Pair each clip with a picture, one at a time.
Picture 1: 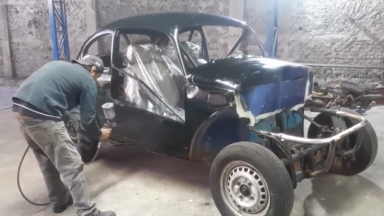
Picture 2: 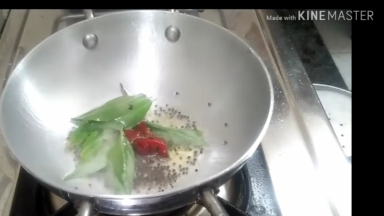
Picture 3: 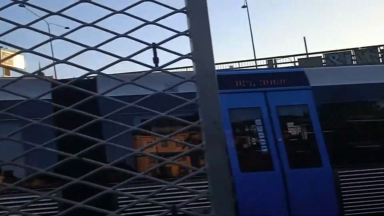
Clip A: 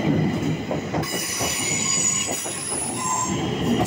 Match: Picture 3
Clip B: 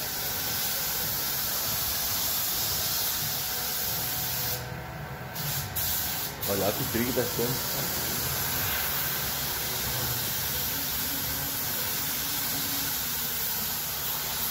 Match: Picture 1